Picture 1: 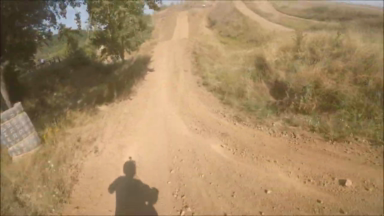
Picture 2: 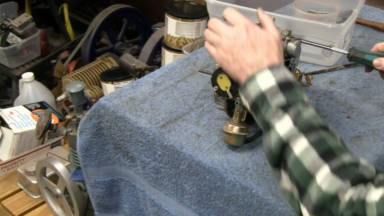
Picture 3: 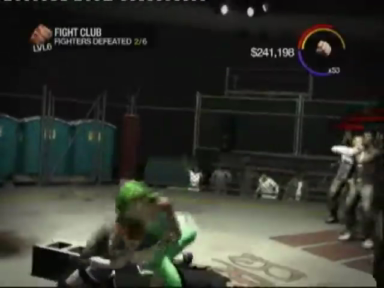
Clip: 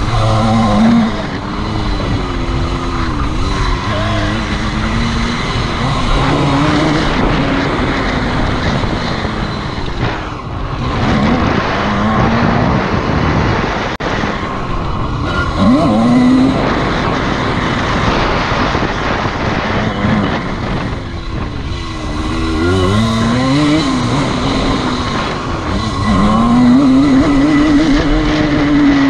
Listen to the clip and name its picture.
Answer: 1